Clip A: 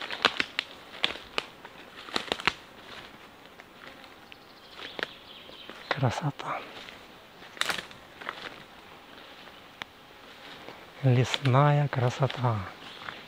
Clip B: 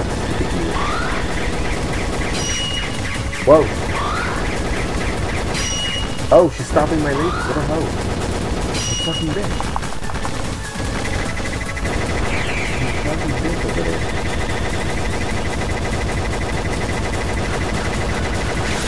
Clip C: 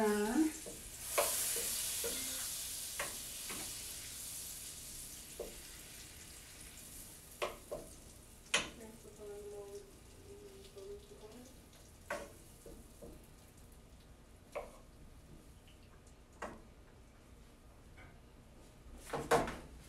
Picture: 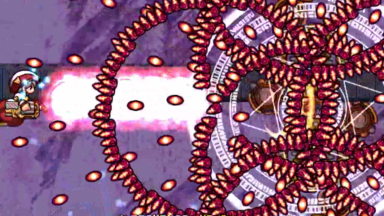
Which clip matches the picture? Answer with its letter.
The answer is B